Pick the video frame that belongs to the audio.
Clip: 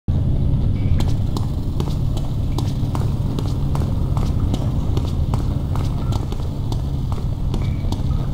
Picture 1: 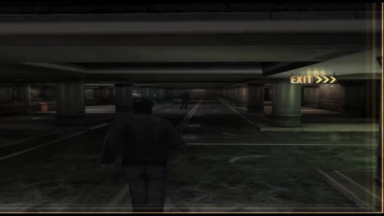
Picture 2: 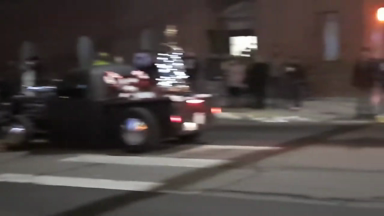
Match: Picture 1